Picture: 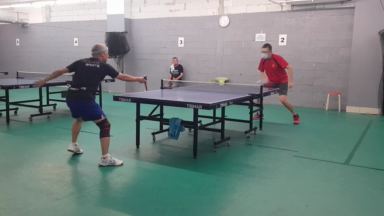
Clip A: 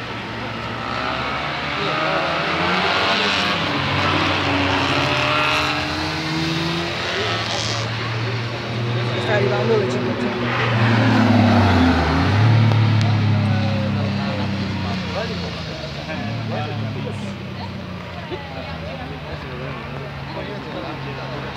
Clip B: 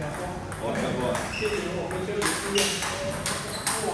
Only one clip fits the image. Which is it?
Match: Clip B